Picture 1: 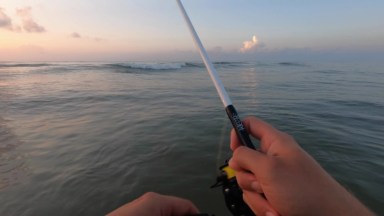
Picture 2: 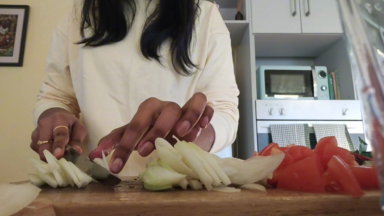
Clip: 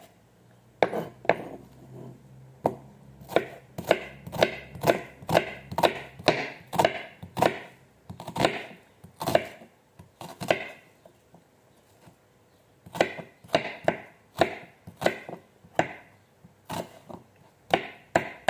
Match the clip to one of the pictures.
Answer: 2